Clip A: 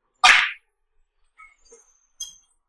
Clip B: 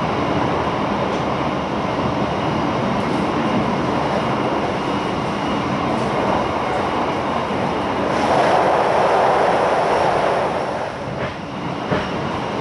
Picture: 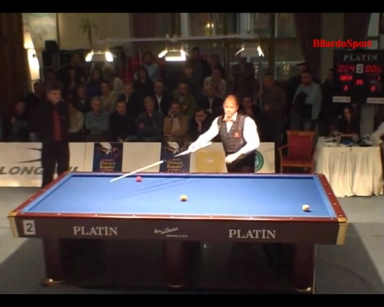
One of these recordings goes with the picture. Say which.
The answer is A